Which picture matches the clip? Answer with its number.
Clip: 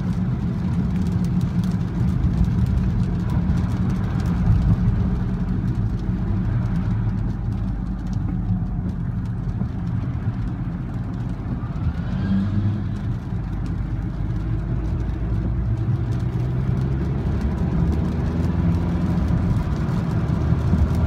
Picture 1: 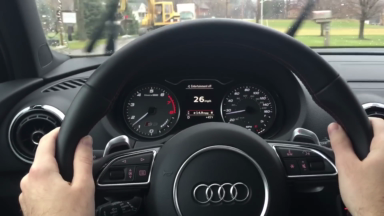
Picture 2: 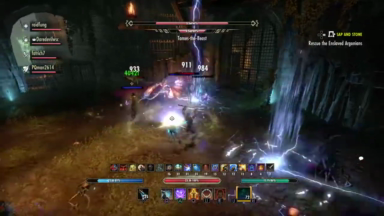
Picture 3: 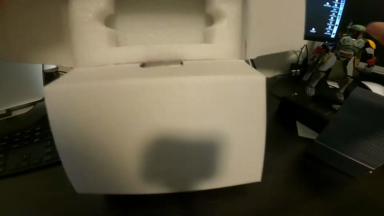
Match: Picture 1